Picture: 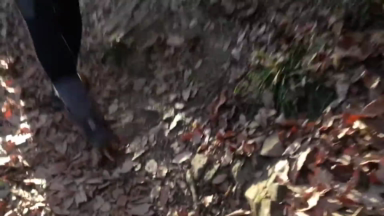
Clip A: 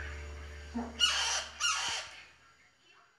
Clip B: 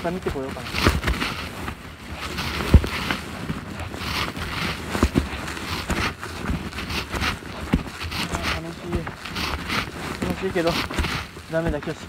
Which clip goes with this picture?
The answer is B